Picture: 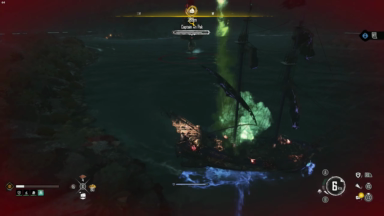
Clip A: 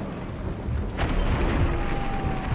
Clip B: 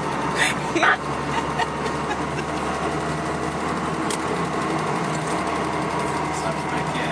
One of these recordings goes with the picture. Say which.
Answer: A